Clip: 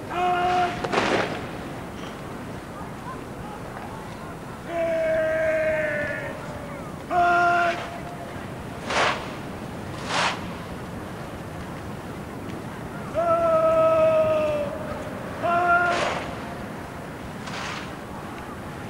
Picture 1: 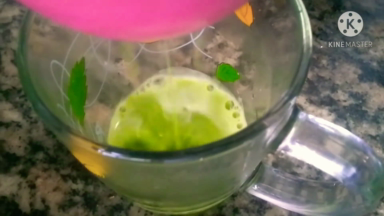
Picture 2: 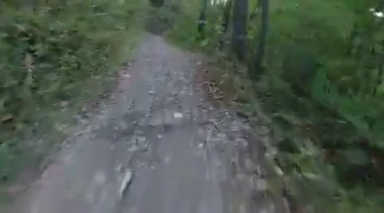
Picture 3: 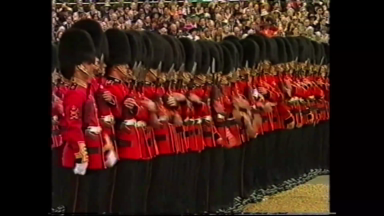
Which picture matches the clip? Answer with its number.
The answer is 3